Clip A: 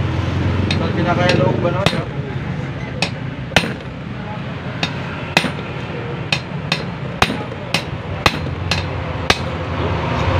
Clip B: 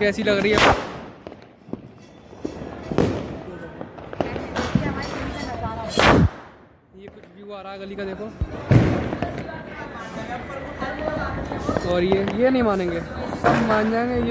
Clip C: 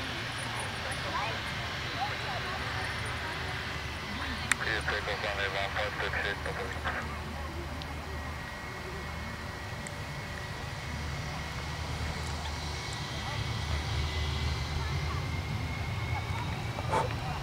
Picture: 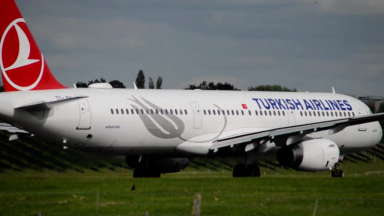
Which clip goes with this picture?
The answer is C